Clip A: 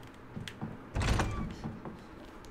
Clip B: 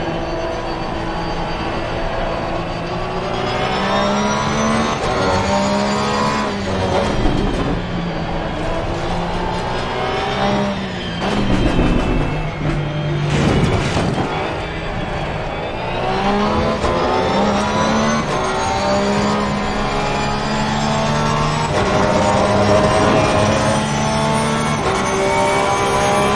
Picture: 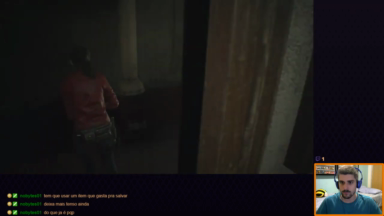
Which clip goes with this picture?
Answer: A